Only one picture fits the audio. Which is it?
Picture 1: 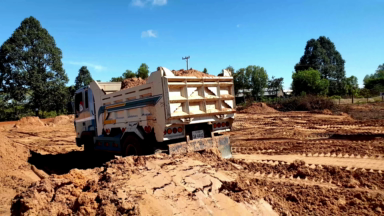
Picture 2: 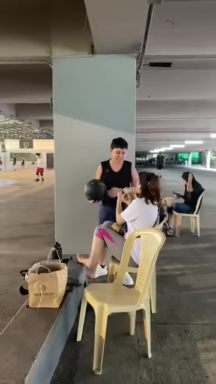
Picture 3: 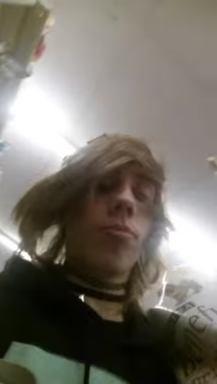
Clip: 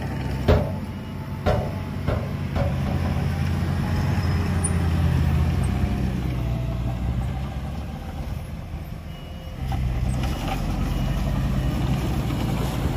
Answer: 1